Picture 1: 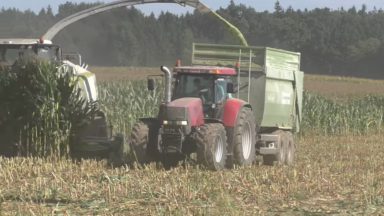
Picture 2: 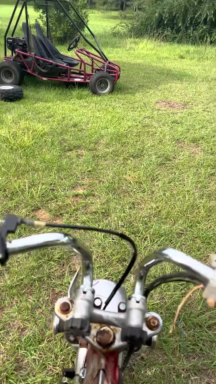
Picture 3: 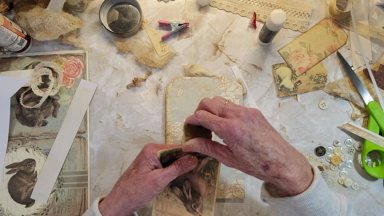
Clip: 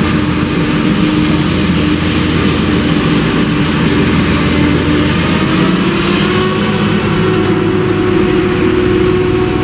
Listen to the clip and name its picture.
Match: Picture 1